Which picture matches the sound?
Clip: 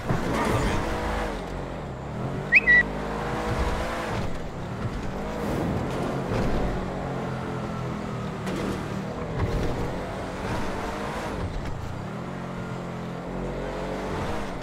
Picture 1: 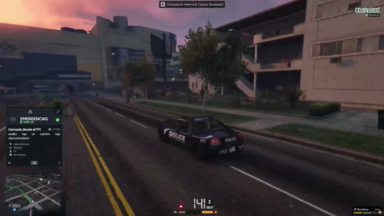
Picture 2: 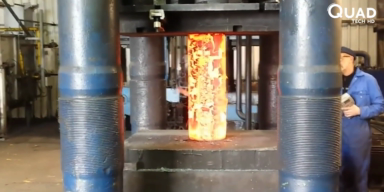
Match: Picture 1